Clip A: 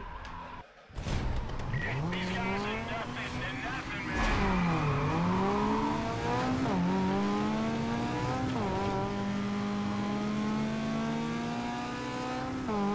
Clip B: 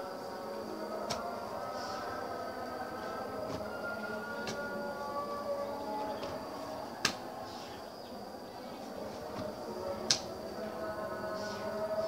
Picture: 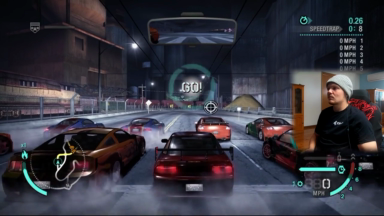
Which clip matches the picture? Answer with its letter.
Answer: A